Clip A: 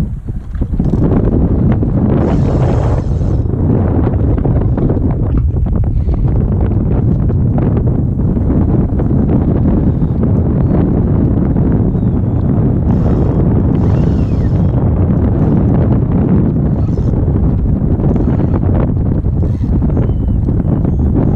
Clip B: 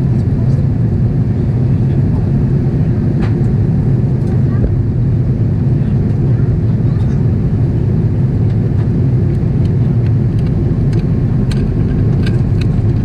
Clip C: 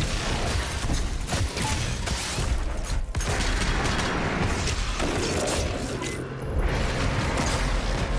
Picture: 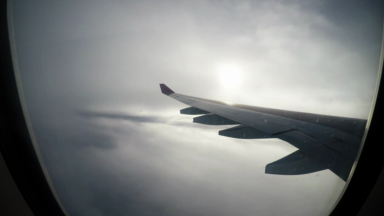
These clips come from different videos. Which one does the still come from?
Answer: B